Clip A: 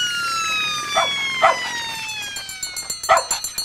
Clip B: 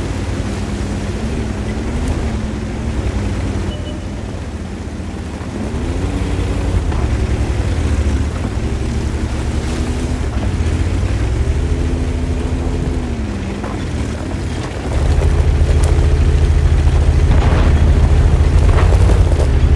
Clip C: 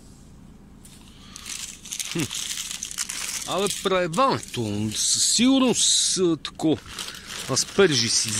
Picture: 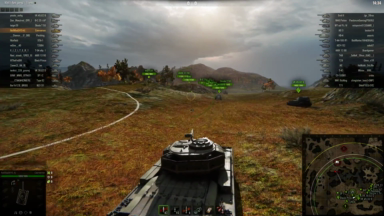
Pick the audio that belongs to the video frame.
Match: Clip B